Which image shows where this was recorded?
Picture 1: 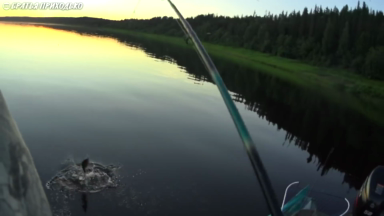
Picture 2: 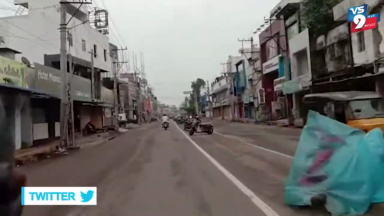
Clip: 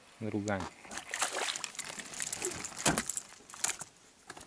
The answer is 1